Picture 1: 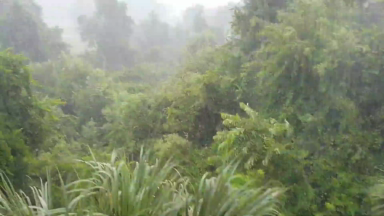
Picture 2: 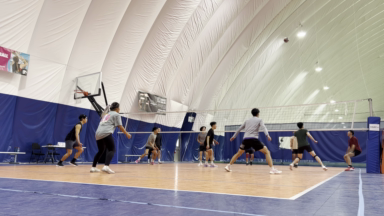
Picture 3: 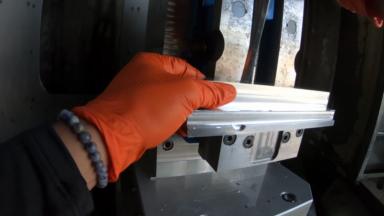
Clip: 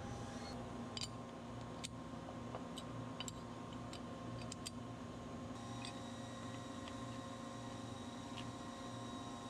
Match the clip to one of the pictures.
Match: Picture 3